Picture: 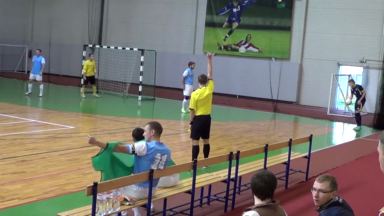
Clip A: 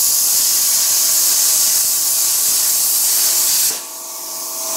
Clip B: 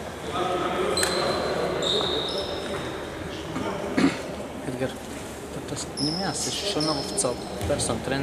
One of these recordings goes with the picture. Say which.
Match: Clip B